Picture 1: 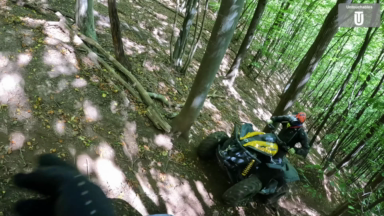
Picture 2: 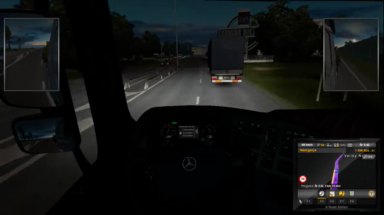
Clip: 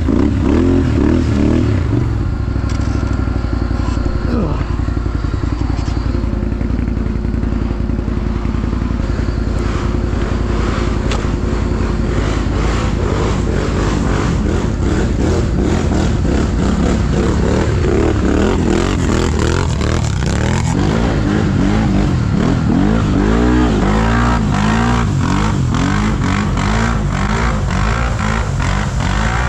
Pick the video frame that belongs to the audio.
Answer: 1